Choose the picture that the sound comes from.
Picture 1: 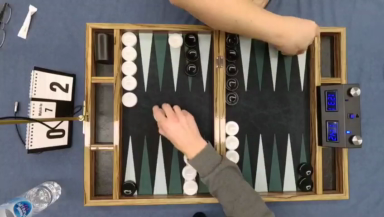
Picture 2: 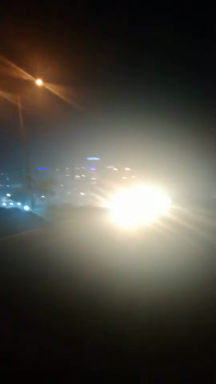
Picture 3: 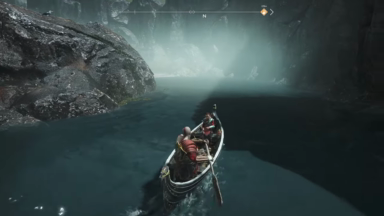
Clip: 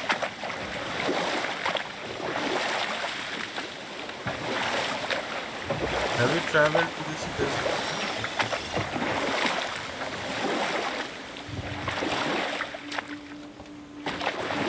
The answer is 3